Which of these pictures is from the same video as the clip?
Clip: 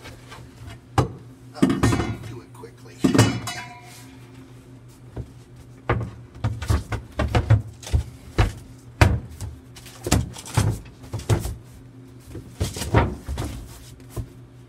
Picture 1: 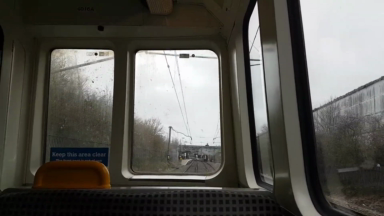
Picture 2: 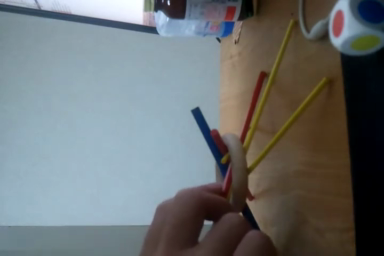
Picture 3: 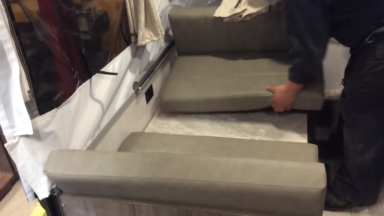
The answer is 3